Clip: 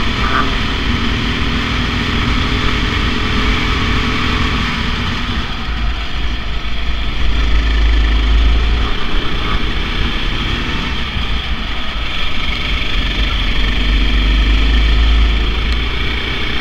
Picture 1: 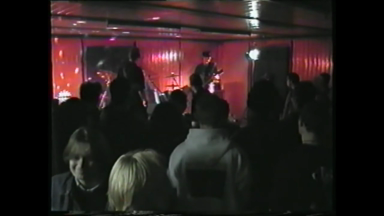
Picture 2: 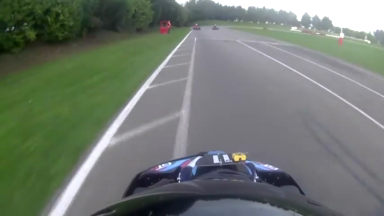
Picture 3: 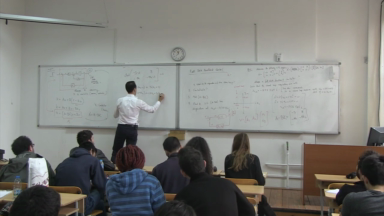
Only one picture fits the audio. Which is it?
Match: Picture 2